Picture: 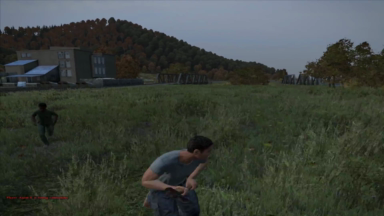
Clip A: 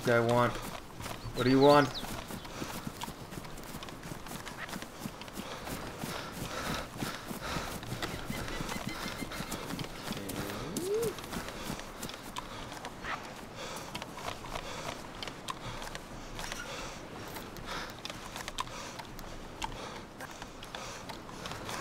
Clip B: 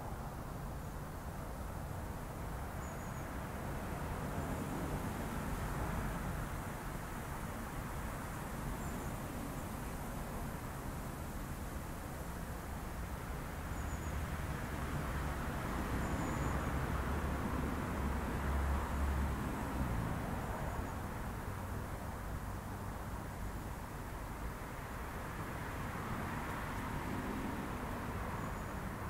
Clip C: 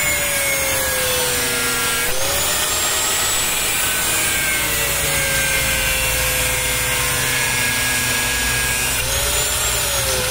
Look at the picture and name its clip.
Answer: A